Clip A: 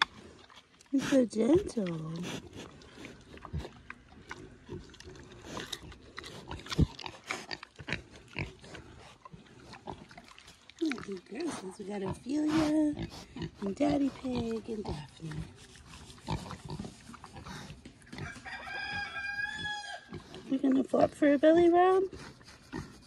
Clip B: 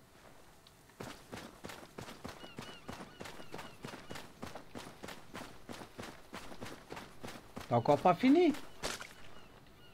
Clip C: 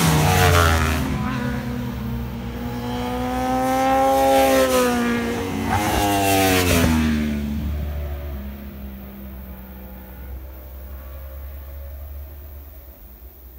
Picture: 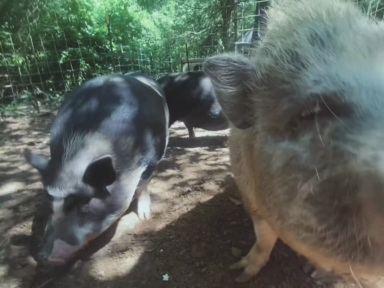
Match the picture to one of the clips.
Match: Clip A